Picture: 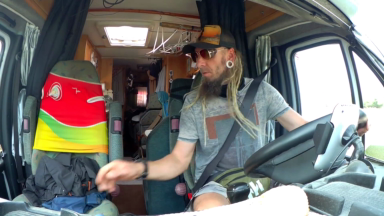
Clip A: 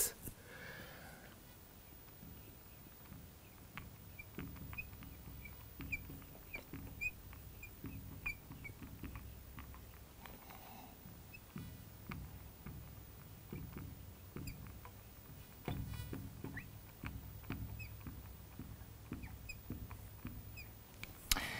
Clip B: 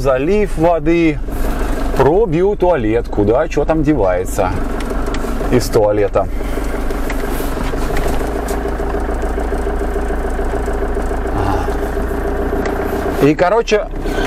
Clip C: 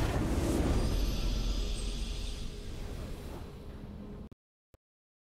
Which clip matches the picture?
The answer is B